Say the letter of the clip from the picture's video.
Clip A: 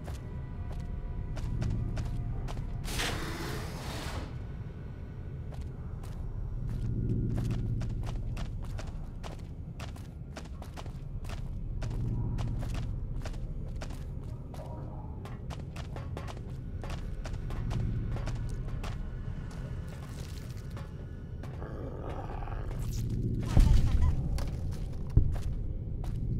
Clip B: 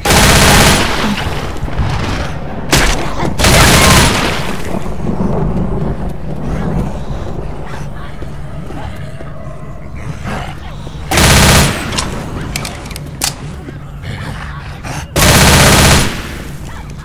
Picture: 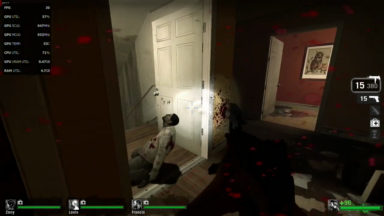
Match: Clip B